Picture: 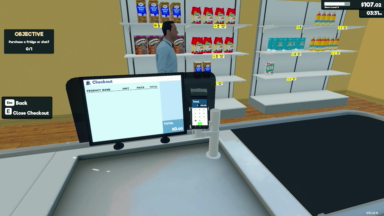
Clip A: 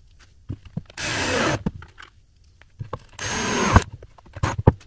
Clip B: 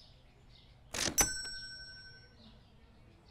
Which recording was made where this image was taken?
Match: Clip B